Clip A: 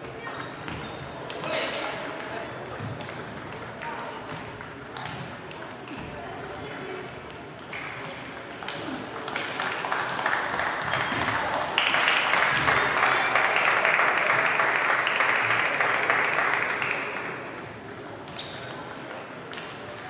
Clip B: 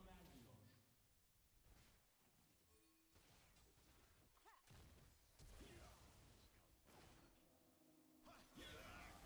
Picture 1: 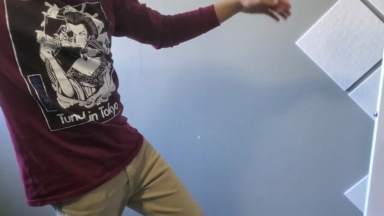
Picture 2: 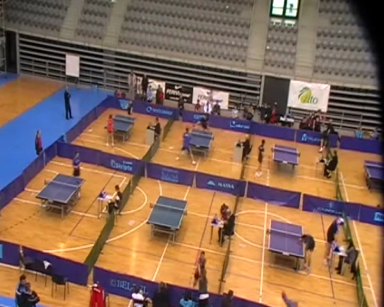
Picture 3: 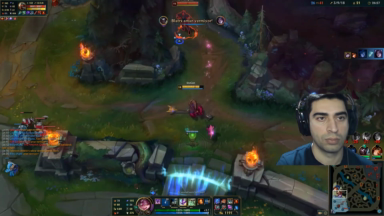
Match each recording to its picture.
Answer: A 2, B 3